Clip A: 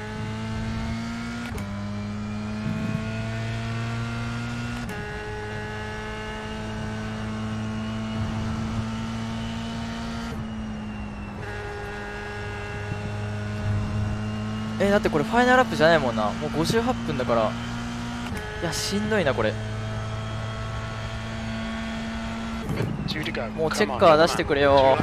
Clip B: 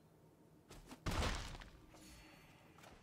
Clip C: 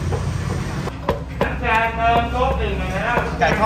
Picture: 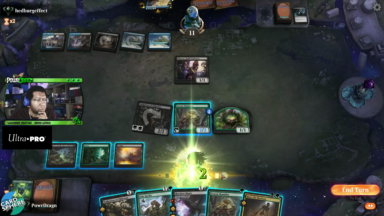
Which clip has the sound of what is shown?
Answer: B